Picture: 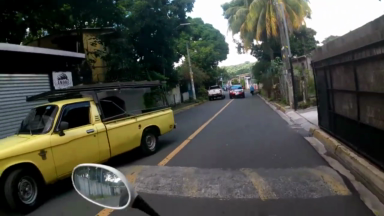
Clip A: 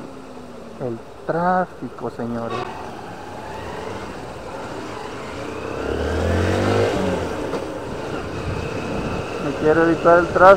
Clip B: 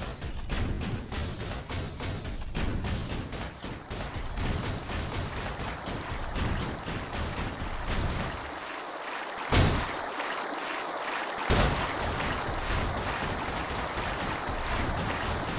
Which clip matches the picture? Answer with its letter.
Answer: A